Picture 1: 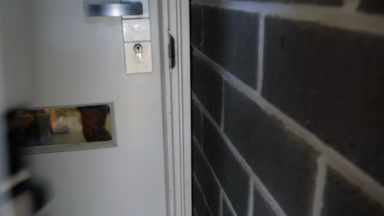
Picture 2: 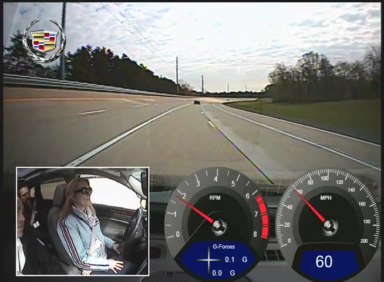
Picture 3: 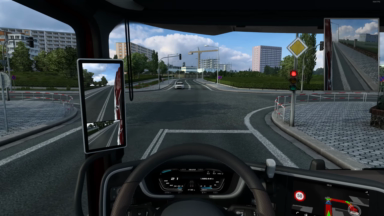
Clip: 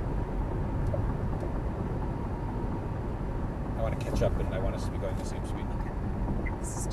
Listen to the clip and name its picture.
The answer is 2